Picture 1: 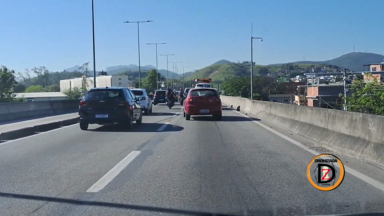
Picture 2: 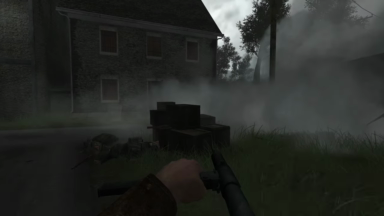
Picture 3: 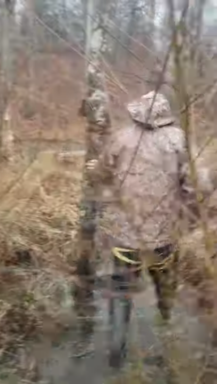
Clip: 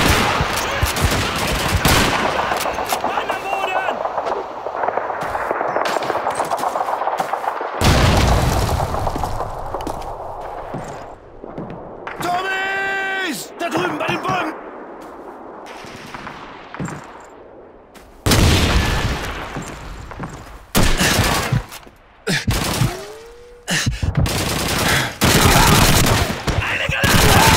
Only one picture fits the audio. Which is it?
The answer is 2